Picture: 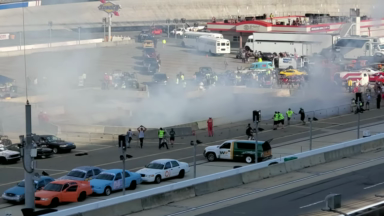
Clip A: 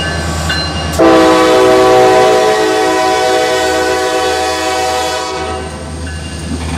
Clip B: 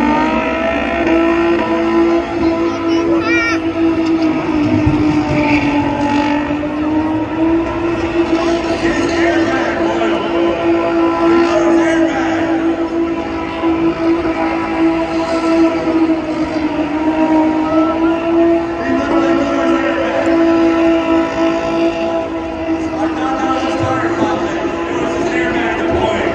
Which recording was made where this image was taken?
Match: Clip B